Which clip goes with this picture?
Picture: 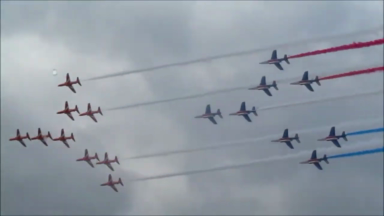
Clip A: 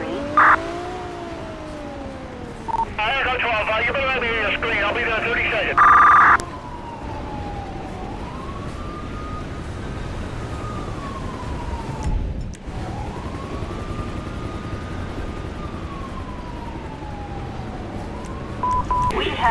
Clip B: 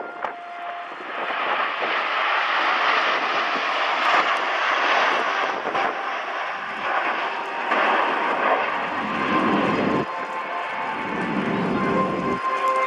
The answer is B